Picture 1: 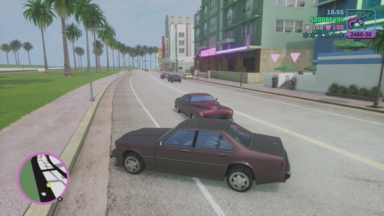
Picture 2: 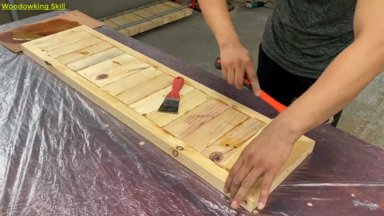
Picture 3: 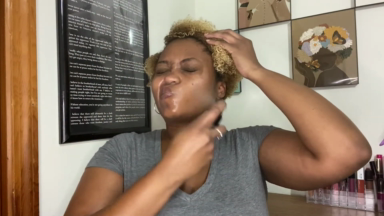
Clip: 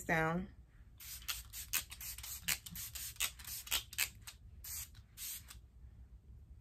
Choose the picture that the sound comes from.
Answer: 3